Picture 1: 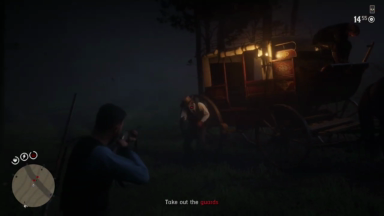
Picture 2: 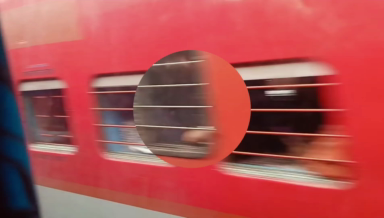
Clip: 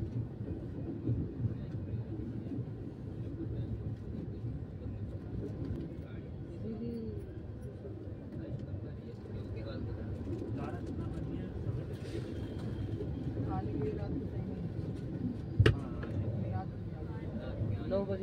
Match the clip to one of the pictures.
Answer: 2